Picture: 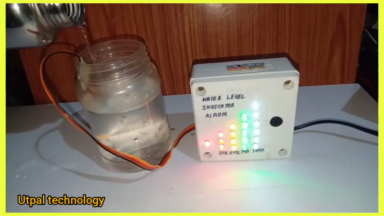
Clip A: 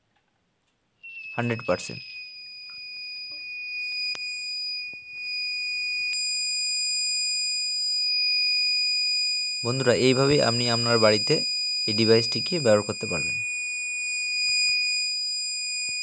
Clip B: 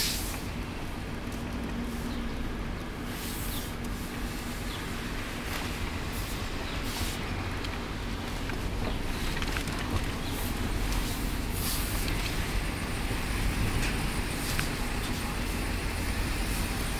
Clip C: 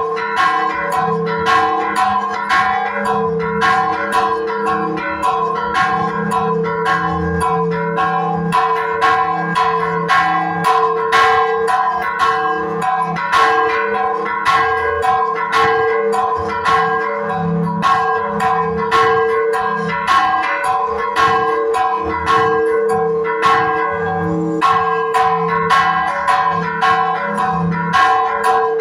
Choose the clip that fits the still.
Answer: A